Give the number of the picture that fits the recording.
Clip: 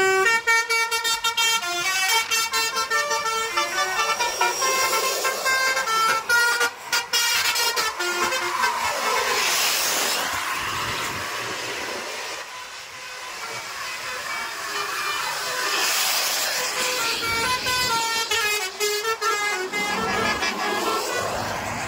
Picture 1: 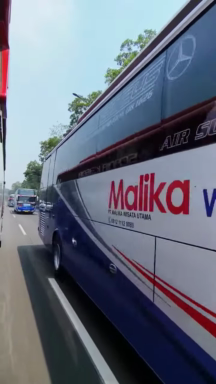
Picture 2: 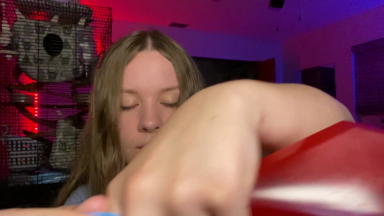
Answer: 1